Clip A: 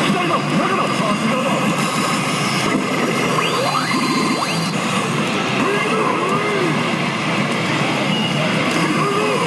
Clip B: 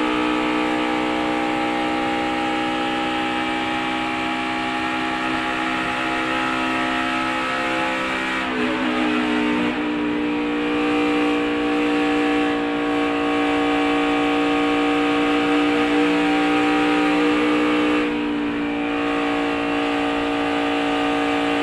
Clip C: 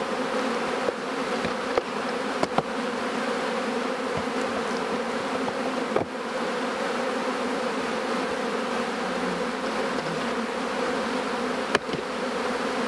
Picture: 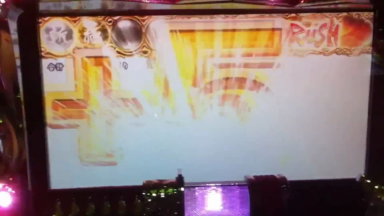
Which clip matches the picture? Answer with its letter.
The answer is A